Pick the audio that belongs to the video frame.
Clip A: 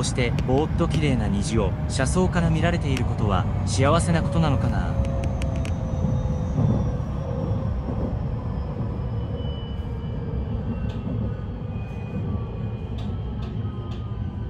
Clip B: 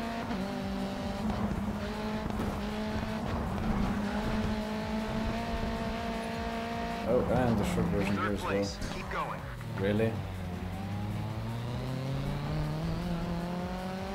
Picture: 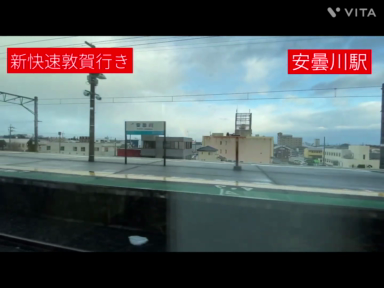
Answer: A